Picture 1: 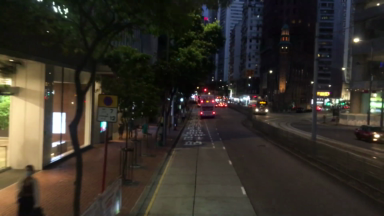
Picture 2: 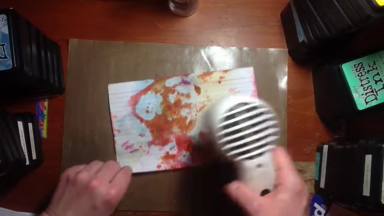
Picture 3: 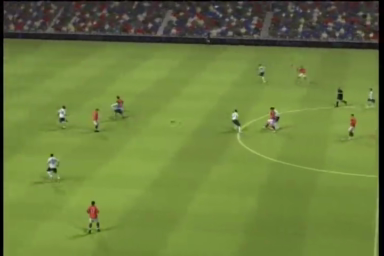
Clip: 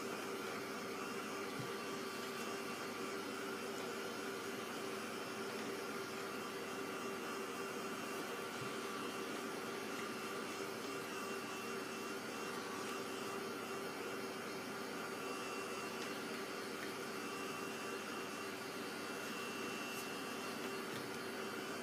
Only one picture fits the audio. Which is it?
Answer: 2